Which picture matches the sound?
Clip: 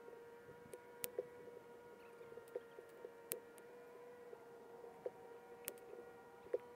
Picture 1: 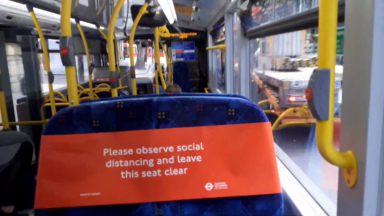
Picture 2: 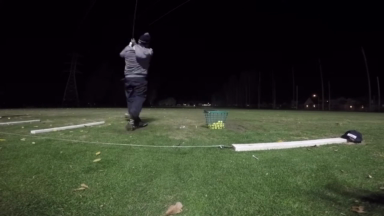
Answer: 2